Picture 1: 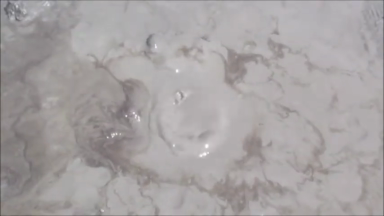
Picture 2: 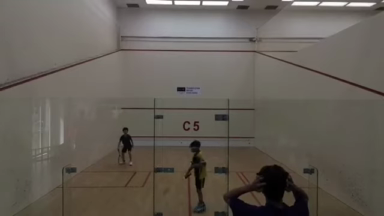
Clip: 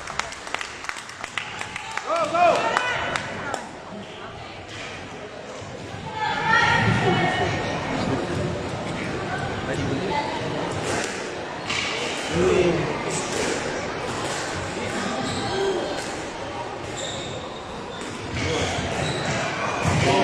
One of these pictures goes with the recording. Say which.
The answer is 2